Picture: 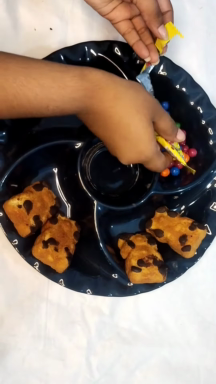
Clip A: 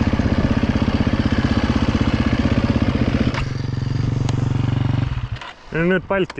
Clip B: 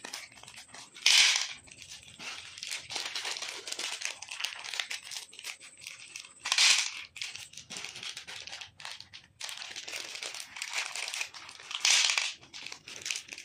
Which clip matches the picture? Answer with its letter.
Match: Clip B